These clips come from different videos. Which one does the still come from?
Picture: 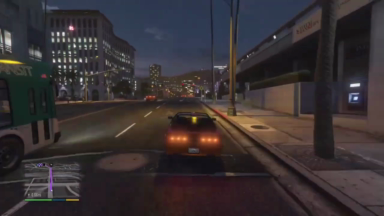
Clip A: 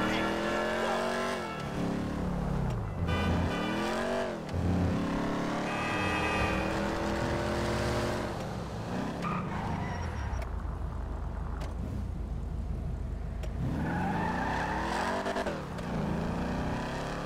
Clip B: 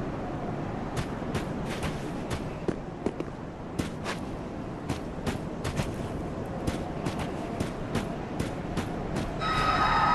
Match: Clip A